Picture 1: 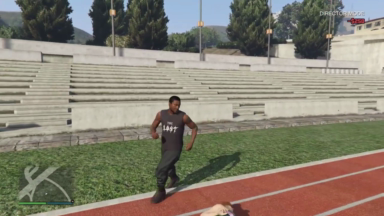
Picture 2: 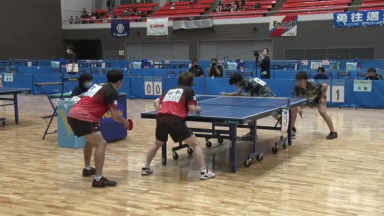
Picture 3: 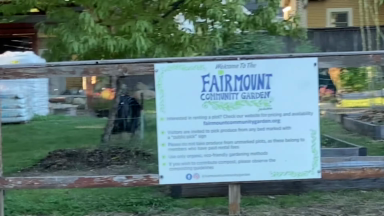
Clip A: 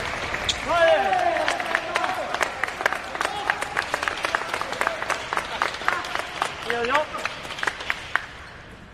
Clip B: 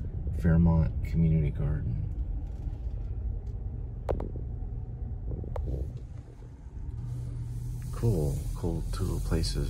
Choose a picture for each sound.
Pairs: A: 2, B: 3